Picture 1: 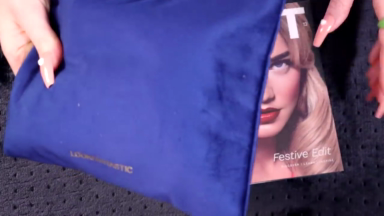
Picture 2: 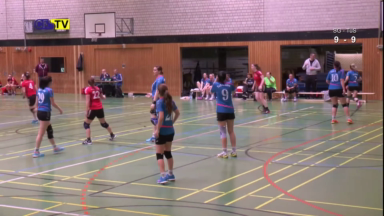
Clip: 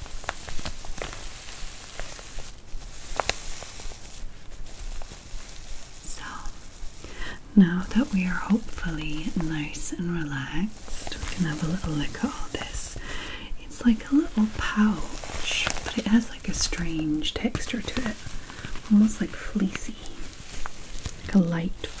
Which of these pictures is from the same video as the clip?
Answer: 1